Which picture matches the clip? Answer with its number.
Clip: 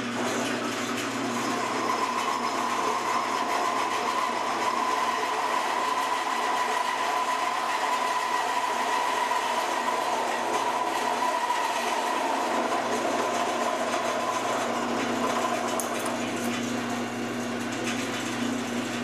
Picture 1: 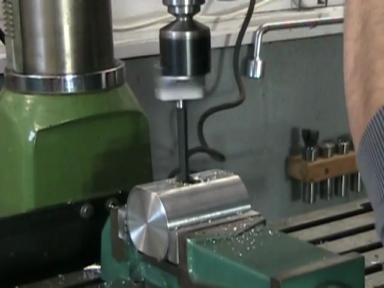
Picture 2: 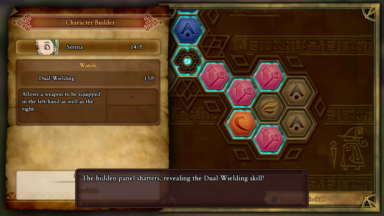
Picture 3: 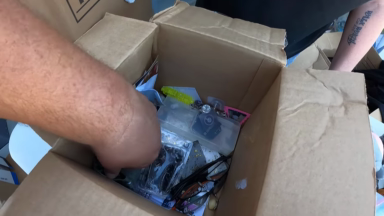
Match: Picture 1